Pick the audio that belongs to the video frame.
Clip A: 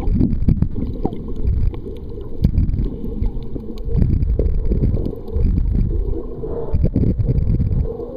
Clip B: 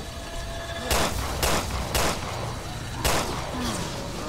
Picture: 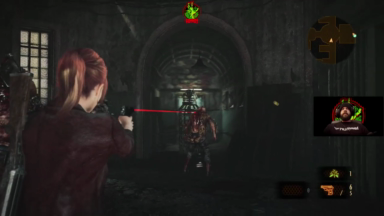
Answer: B